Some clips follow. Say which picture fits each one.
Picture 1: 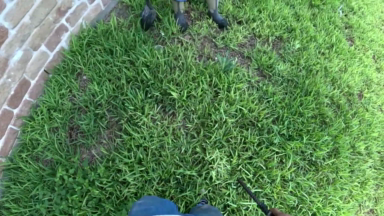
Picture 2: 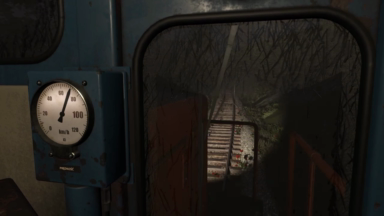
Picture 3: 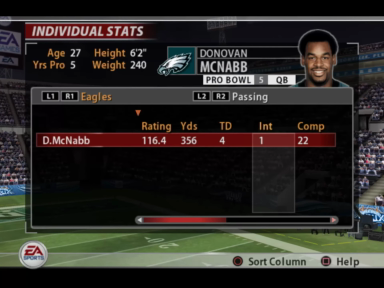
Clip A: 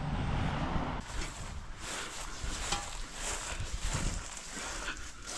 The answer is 1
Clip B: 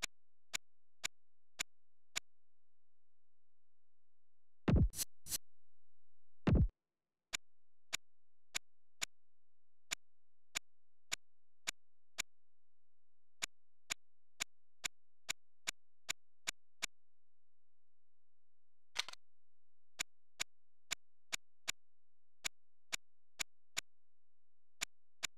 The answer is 3